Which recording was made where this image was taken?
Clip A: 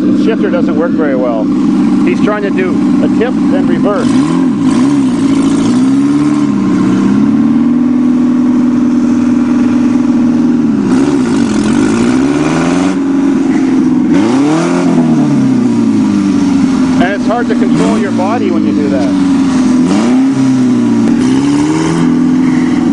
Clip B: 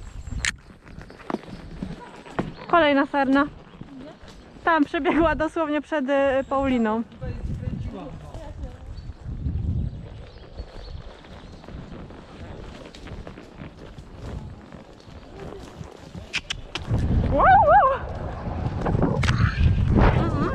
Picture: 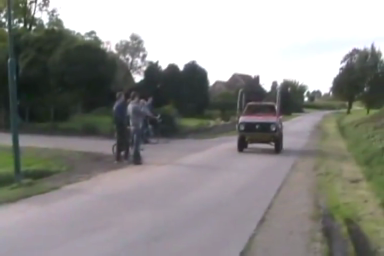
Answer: A